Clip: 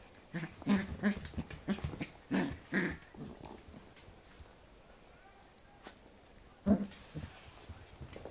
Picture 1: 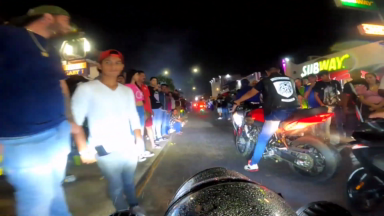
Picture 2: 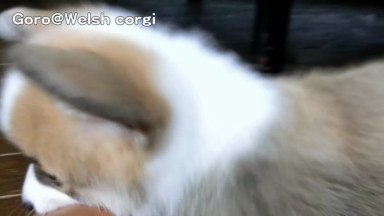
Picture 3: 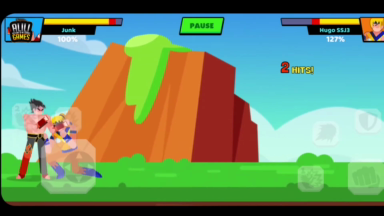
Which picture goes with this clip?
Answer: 2